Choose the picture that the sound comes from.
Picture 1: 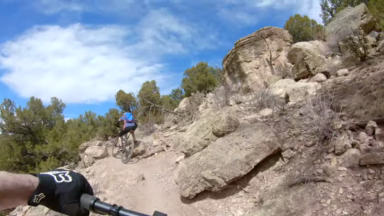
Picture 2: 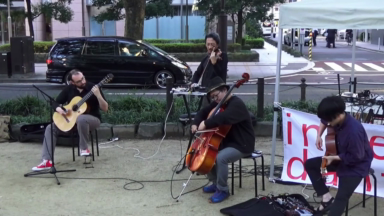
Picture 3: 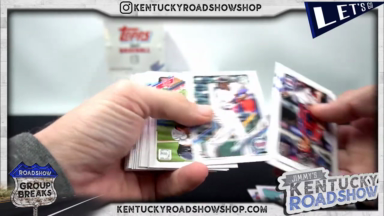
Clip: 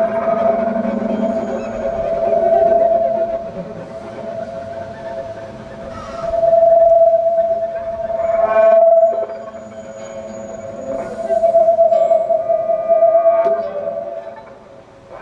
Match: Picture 2